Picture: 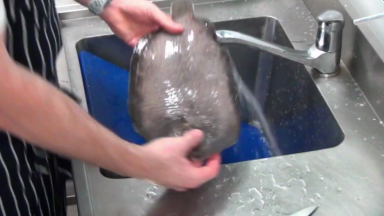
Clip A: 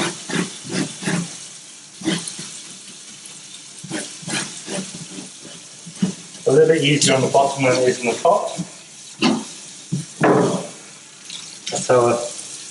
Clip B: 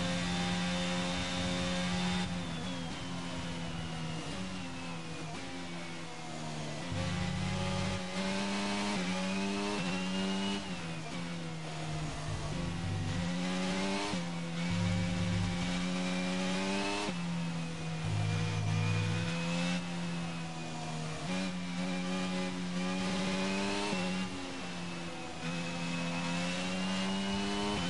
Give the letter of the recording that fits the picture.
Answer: A